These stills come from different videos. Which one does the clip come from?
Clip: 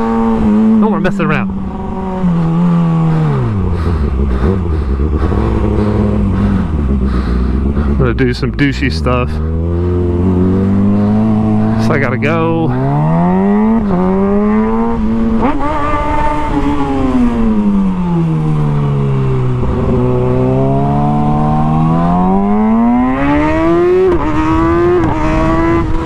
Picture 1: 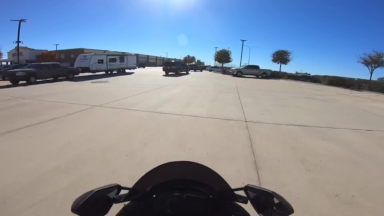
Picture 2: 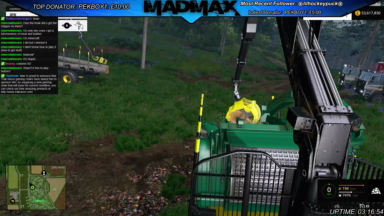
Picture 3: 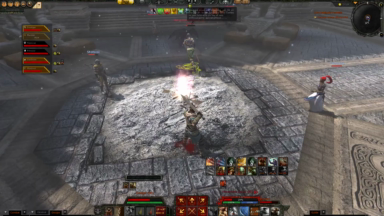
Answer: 1